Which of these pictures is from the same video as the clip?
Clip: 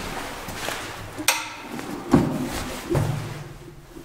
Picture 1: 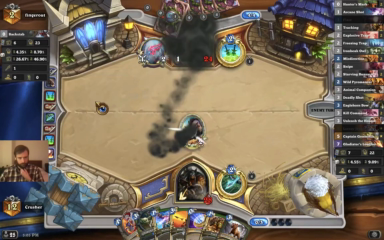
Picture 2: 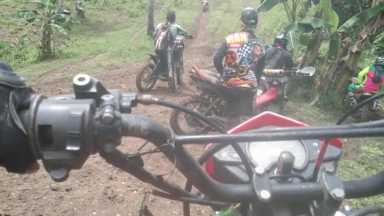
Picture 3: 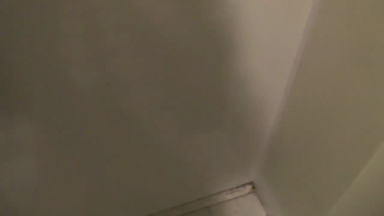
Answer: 3